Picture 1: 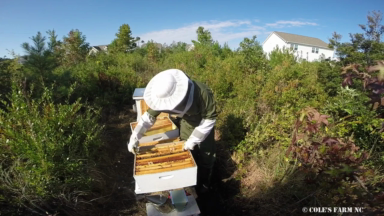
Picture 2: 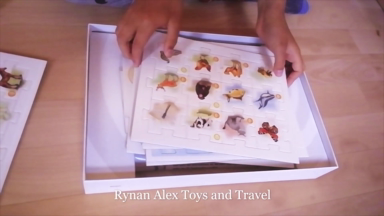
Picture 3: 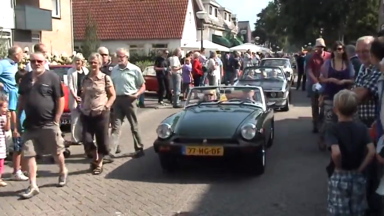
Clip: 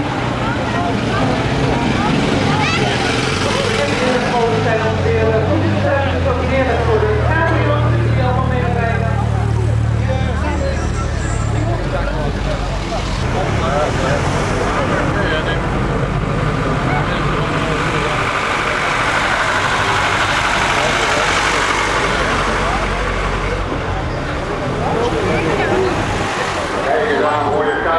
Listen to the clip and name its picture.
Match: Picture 3